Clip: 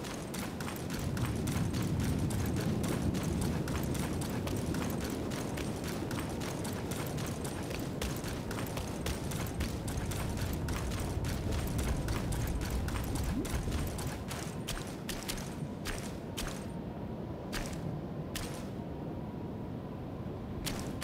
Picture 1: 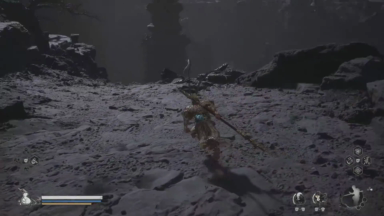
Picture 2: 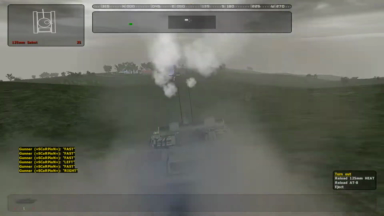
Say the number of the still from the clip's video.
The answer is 1